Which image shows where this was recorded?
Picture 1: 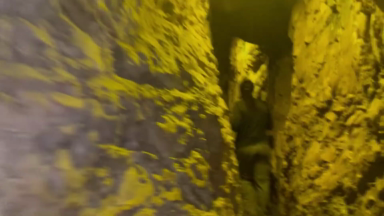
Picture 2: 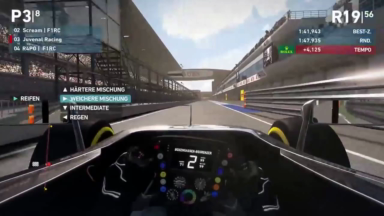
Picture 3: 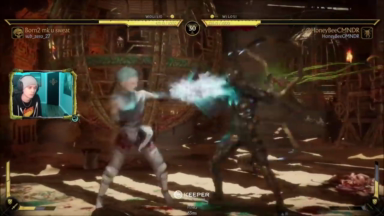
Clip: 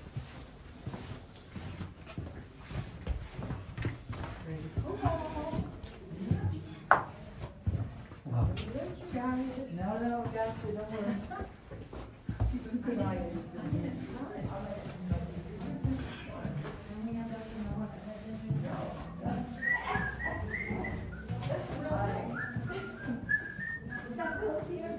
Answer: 1